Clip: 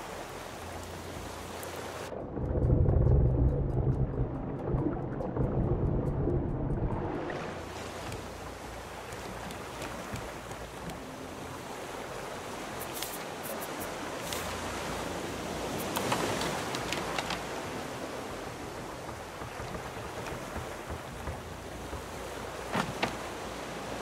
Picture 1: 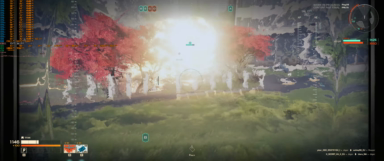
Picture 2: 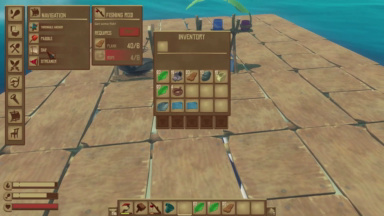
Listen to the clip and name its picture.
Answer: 2